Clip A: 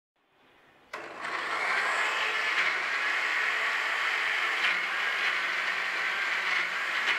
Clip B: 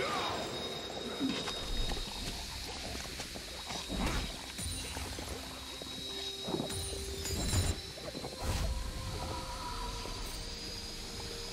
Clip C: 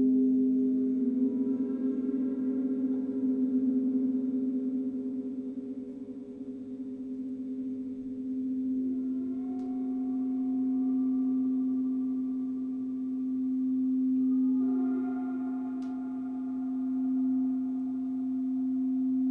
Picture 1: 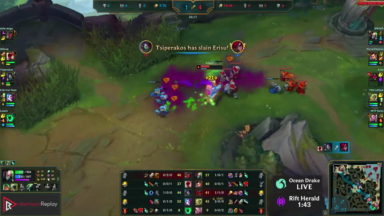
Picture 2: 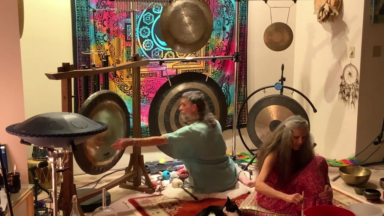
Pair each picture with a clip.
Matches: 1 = B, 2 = C